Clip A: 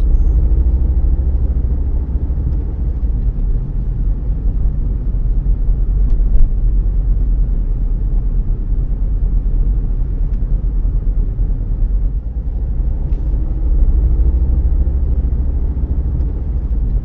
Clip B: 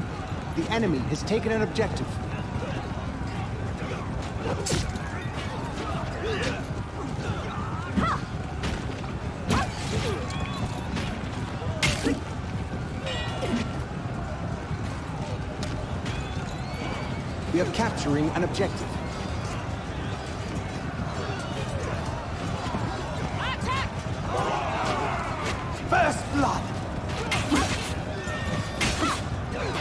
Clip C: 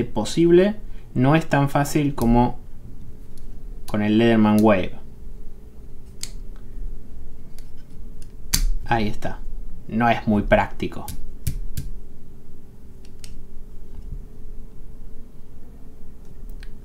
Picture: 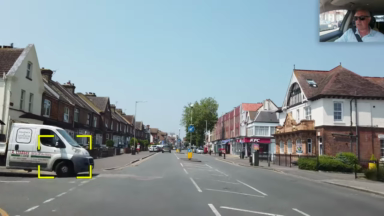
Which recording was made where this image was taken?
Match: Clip A